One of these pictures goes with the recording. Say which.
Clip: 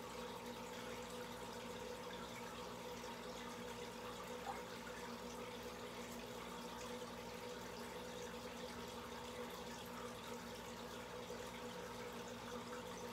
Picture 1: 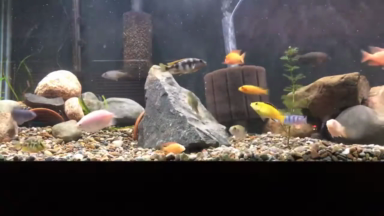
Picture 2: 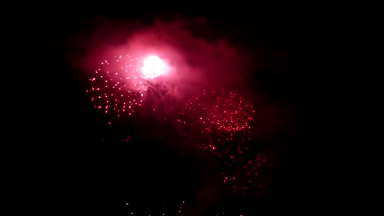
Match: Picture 1